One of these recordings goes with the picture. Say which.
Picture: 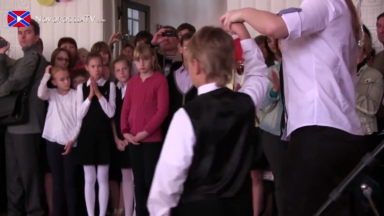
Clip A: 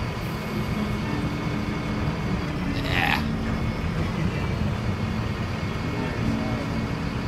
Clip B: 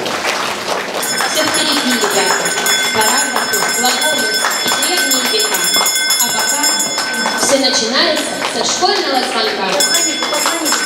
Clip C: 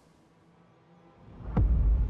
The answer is B